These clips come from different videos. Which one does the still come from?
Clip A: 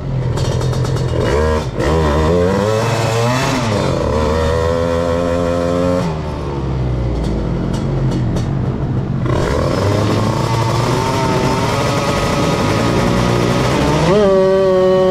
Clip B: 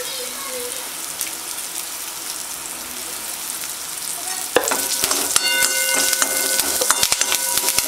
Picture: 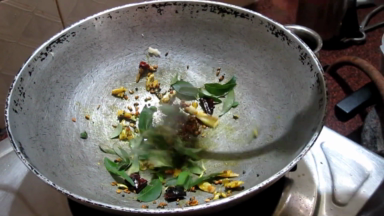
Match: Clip B